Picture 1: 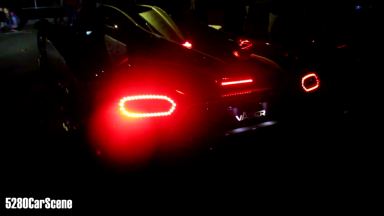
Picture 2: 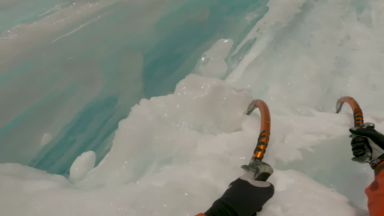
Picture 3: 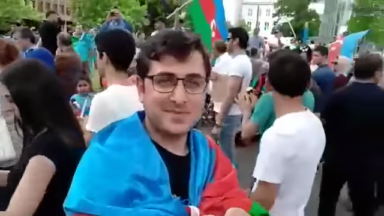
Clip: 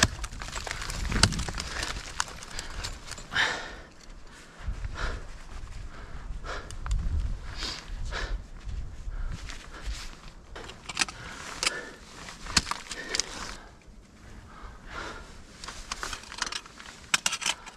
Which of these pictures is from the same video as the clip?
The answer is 2